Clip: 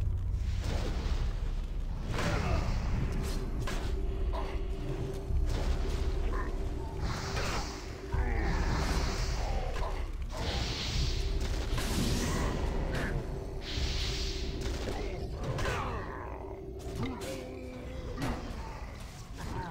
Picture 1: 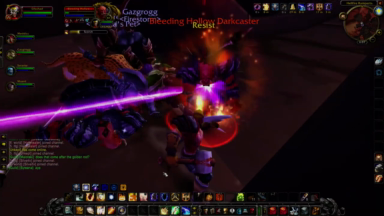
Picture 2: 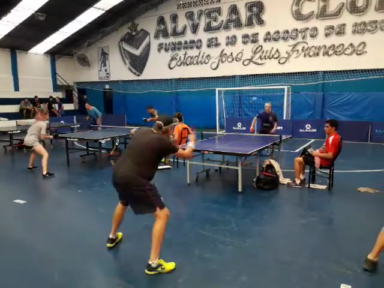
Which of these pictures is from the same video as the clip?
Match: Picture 1